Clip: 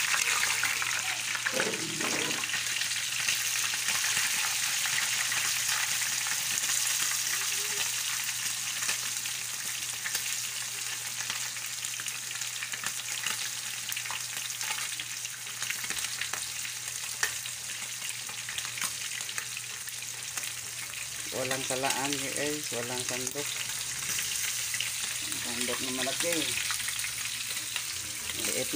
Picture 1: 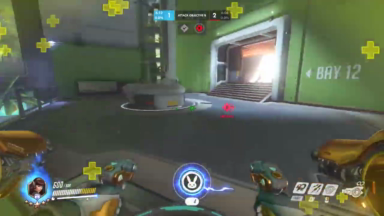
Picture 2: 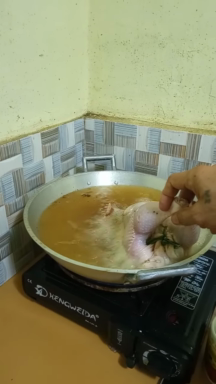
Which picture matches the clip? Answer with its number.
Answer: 2